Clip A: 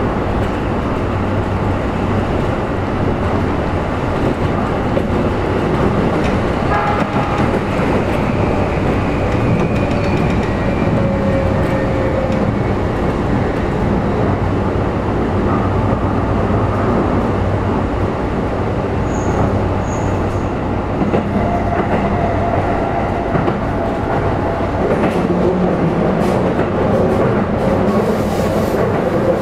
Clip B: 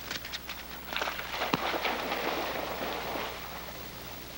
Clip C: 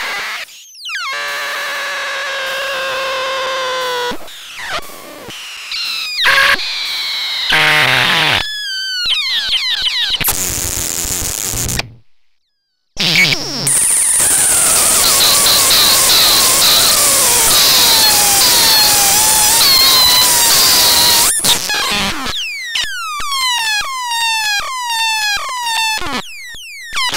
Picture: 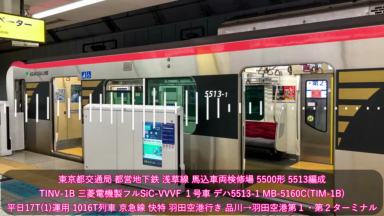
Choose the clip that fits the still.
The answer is A